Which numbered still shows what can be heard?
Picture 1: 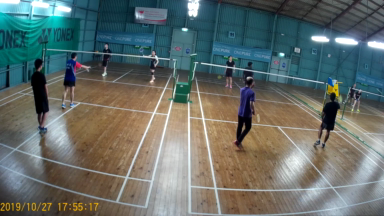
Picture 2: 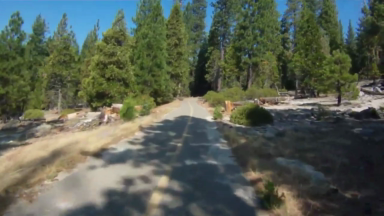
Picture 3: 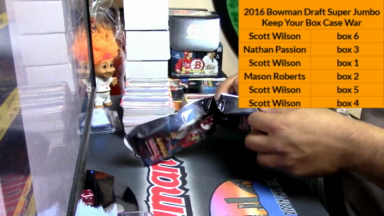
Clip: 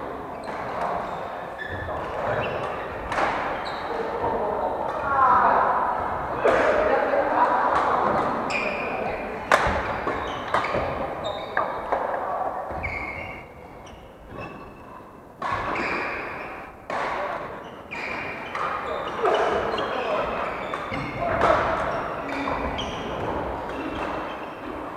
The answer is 1